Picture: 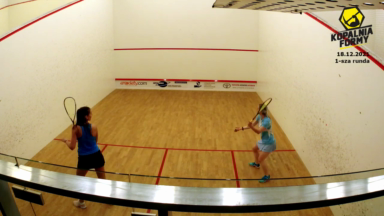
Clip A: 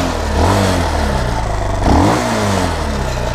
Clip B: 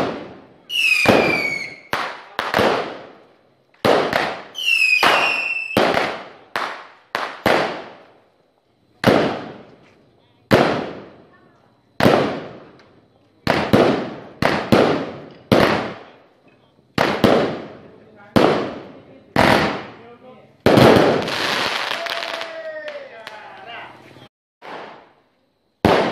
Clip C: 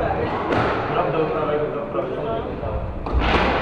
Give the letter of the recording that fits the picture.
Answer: C